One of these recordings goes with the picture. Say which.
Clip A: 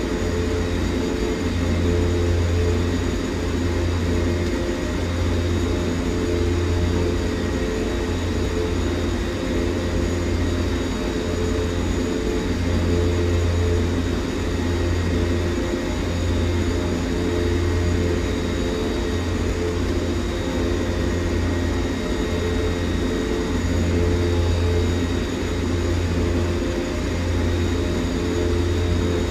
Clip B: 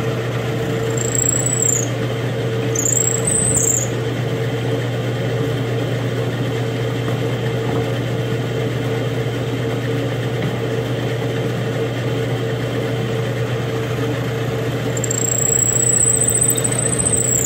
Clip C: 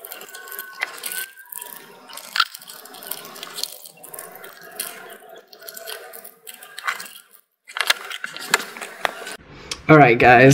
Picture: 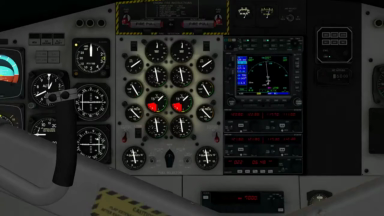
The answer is A